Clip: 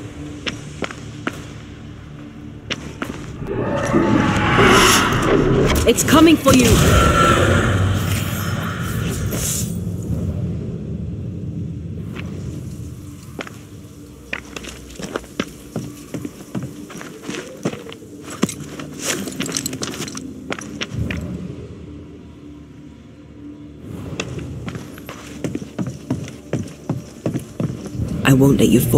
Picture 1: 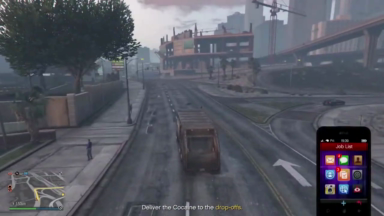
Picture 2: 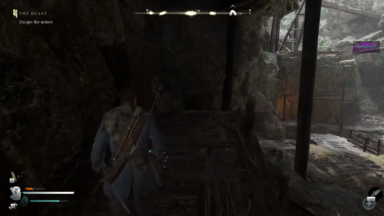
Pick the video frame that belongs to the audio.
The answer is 2